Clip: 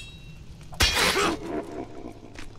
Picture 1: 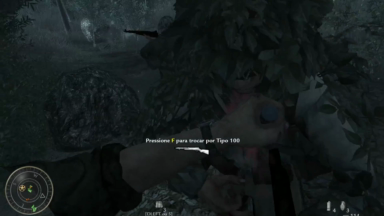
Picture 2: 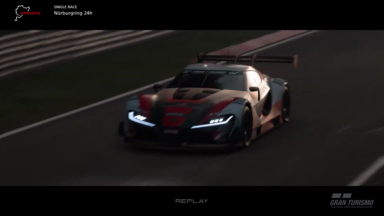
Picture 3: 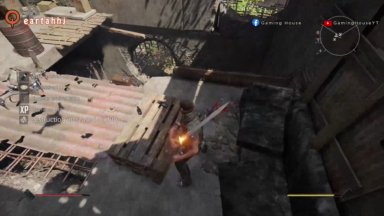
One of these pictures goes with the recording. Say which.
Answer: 3